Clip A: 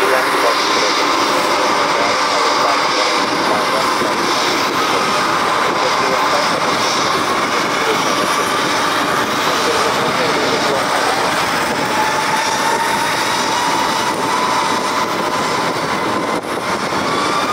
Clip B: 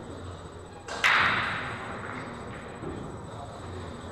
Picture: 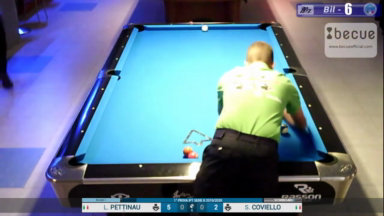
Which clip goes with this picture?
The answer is B